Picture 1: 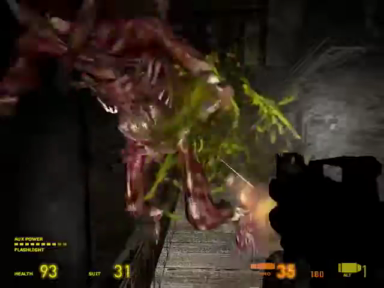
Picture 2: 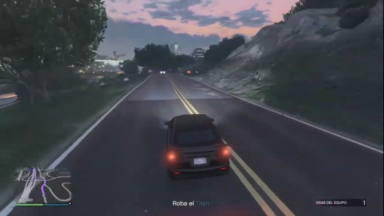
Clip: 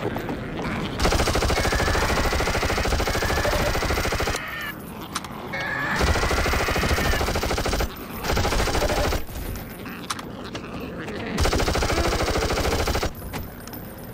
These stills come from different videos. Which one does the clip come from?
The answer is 1